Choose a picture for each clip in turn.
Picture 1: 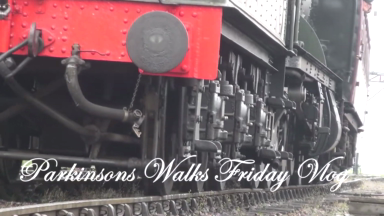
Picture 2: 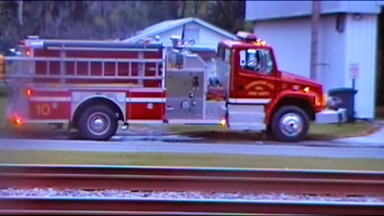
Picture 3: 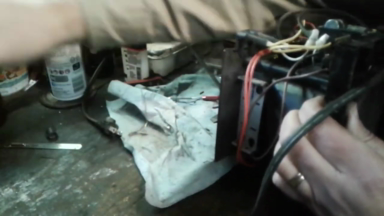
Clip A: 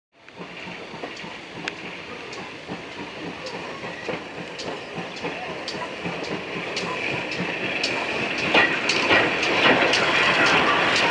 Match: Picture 1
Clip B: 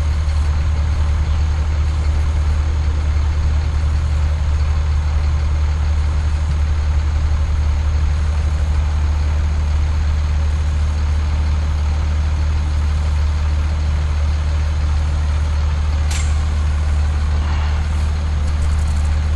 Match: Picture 2